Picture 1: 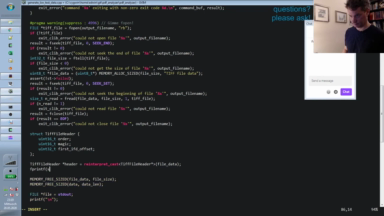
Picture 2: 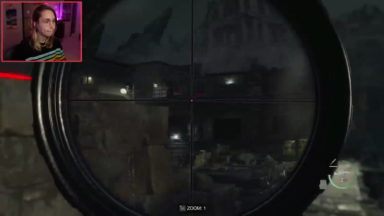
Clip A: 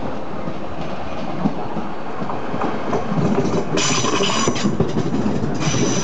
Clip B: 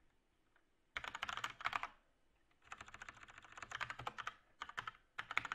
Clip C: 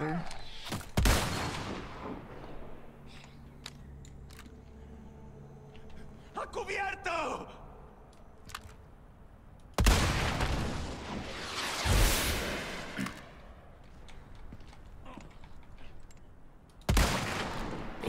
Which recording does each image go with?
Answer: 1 B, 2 C